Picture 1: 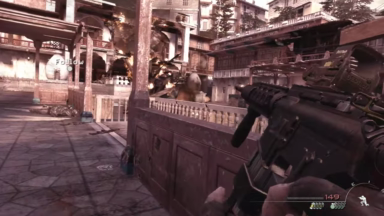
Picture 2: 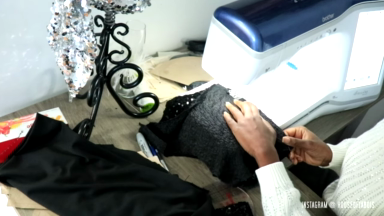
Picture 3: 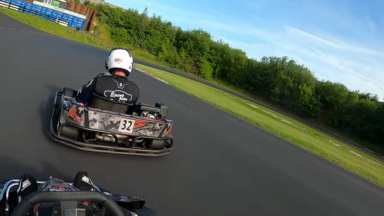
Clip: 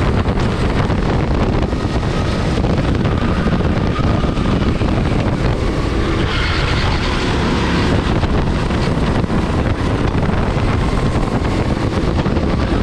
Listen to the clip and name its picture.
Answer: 3